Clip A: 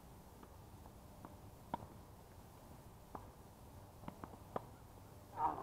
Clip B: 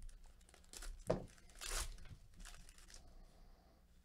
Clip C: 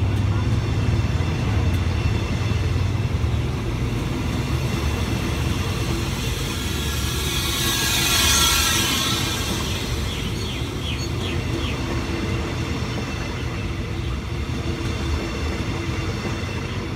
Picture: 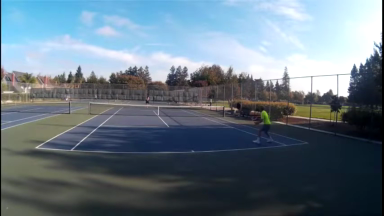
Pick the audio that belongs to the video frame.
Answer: A